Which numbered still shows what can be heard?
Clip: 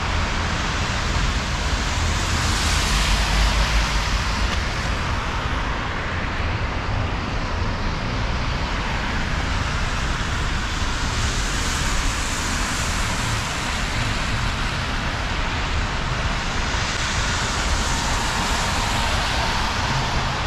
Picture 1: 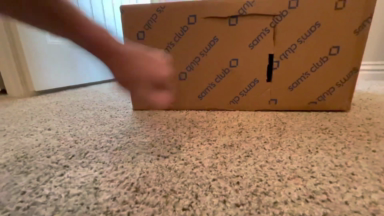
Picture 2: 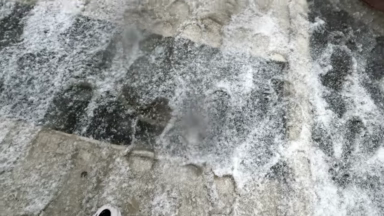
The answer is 2